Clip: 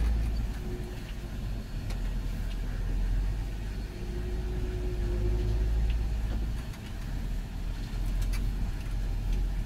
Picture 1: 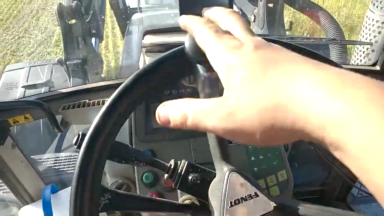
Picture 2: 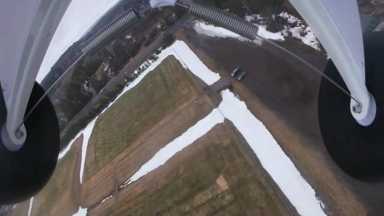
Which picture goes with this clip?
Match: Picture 1